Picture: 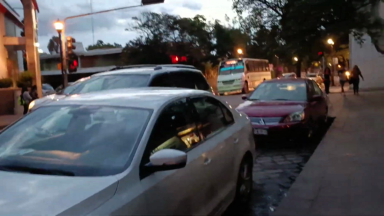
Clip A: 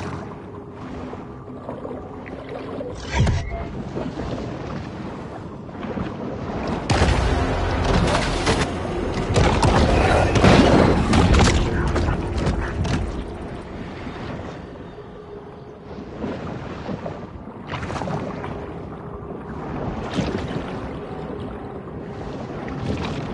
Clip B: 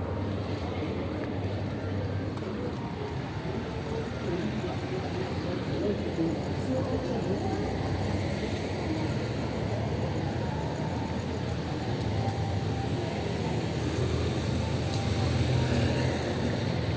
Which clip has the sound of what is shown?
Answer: B